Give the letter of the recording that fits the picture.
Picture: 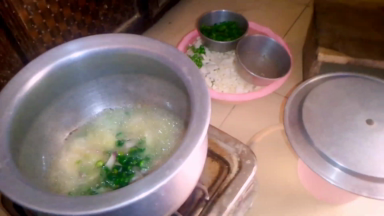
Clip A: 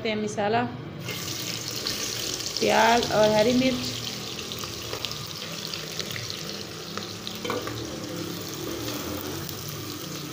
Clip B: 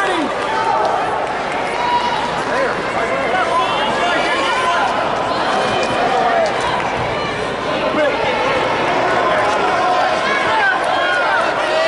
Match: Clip A